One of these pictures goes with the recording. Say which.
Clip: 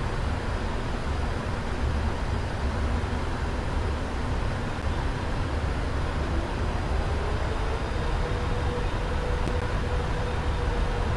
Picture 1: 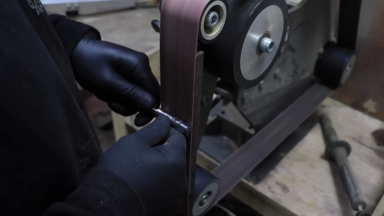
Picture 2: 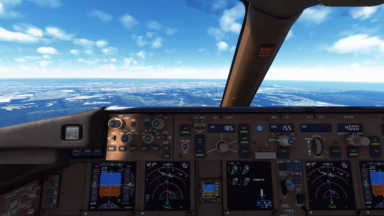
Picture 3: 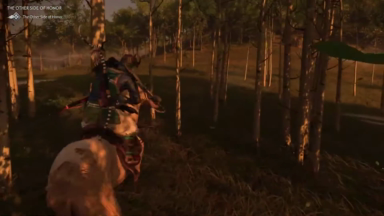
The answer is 2